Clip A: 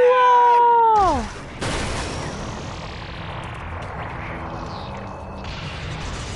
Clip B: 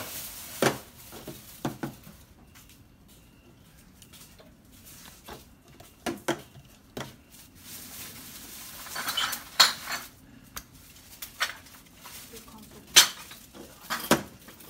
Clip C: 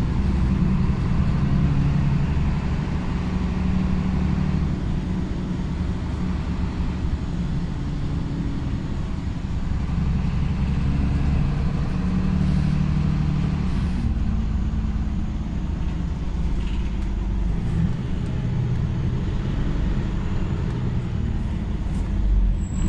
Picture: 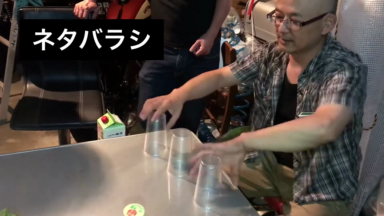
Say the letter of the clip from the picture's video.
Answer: B